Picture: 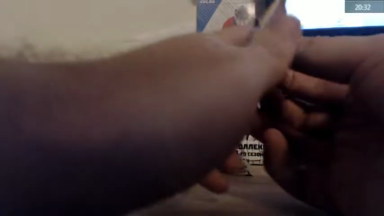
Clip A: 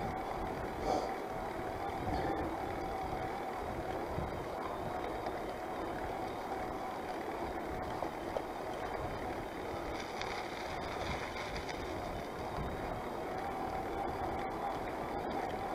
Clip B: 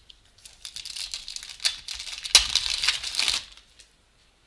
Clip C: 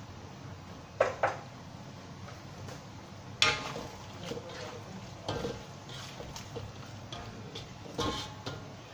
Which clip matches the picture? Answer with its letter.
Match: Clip B